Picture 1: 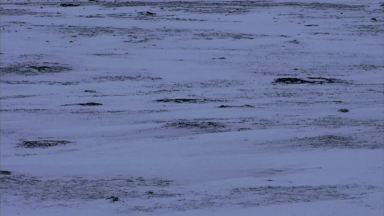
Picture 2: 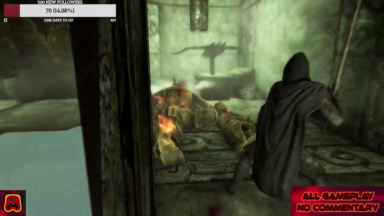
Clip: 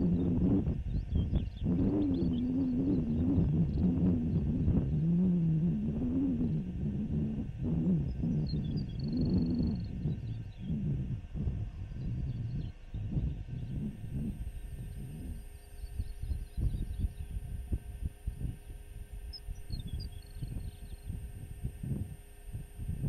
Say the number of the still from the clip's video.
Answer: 1